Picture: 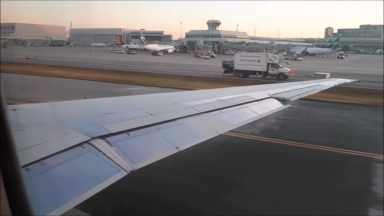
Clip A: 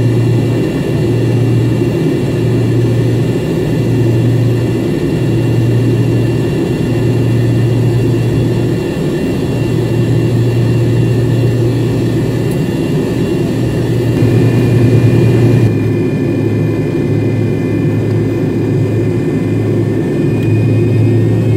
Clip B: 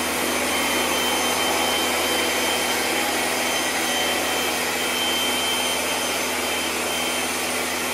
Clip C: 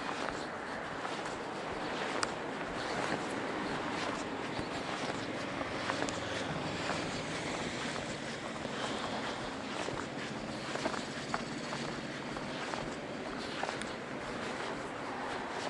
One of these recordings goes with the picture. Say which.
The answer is A